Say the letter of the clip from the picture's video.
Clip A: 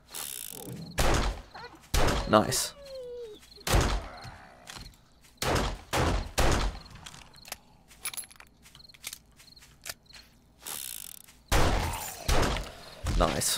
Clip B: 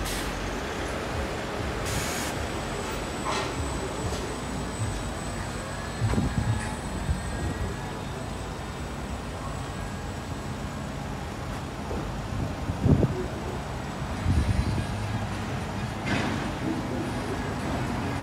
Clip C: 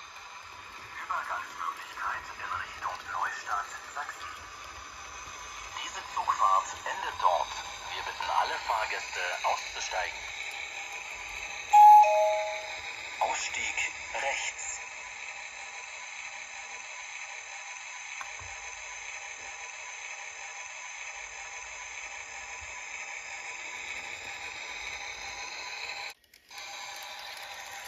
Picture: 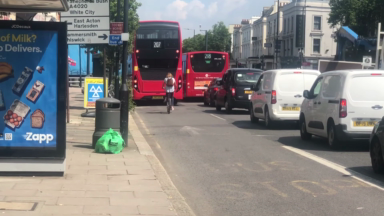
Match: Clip B